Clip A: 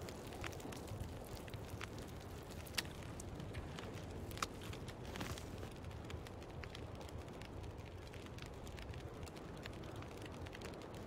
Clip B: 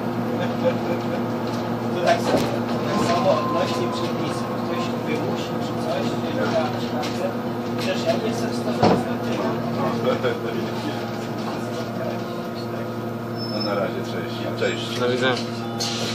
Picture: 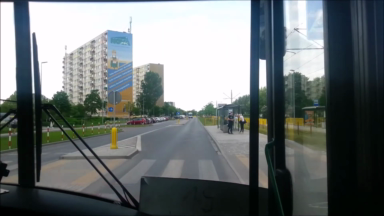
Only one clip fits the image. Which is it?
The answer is B